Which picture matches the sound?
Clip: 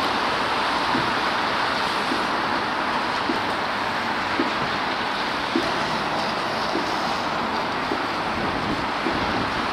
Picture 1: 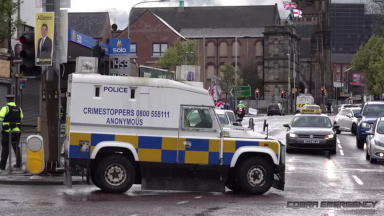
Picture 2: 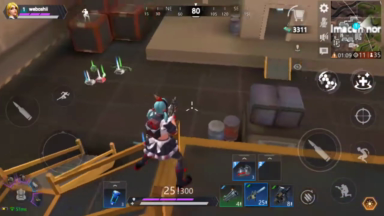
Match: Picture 1